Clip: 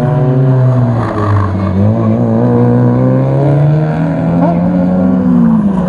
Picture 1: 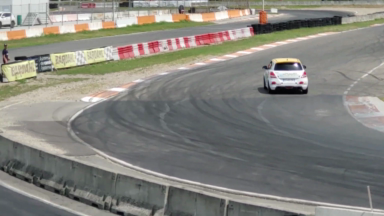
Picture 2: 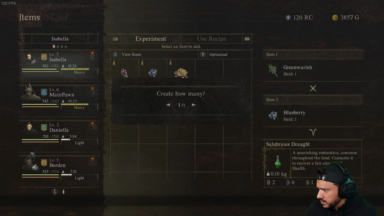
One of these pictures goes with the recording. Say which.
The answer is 1